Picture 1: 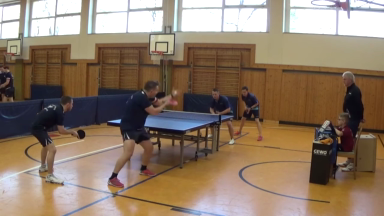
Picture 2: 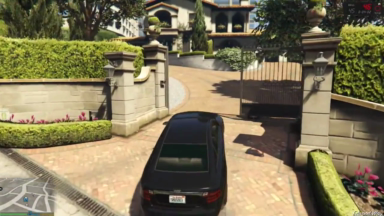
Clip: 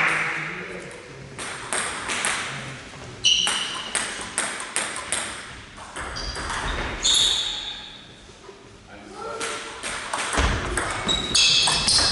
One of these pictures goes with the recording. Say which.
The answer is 1